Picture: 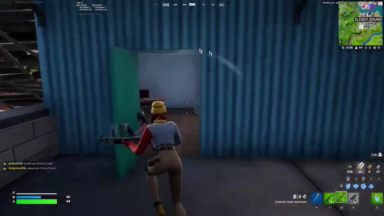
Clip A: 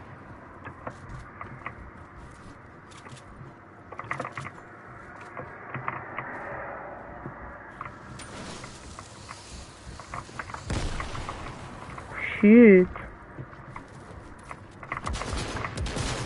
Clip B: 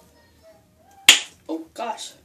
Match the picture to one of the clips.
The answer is A